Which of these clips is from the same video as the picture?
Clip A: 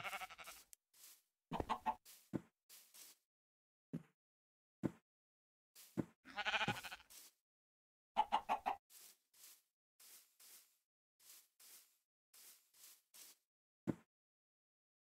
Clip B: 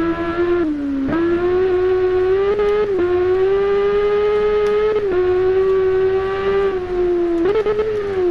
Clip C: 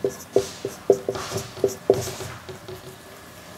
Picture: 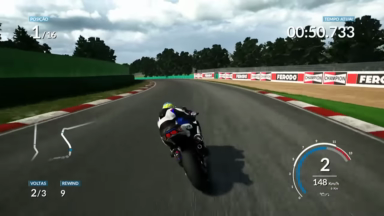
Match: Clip B